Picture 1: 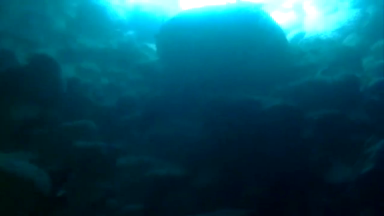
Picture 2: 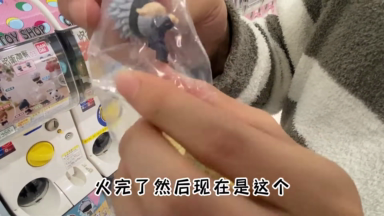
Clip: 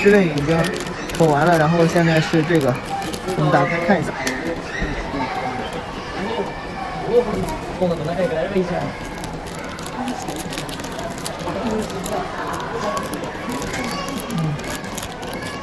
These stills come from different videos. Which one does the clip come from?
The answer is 2